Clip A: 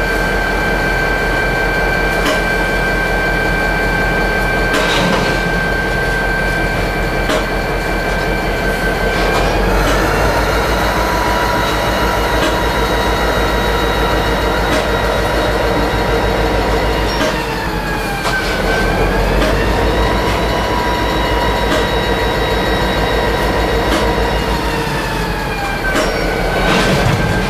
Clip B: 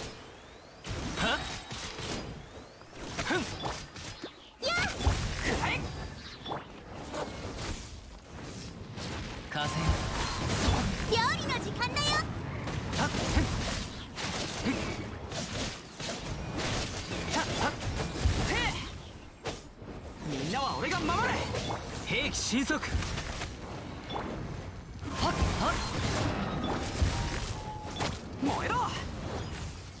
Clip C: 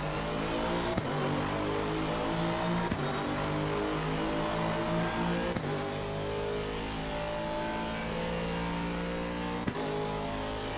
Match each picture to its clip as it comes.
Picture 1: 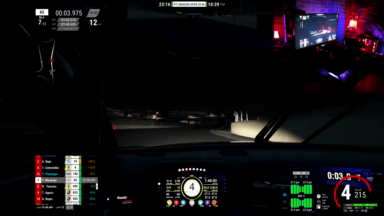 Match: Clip C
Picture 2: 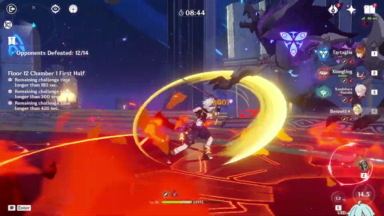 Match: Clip B